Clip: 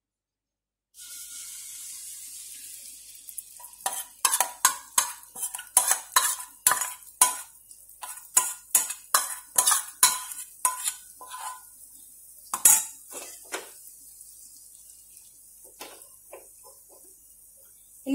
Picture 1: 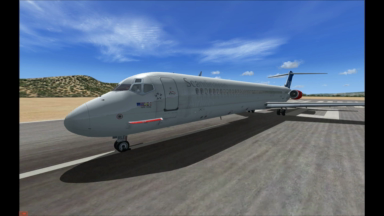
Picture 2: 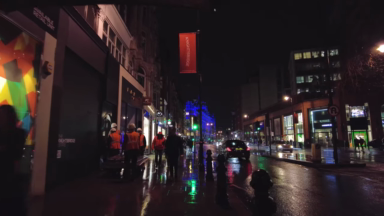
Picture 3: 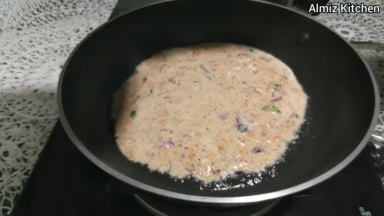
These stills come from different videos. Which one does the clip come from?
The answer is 3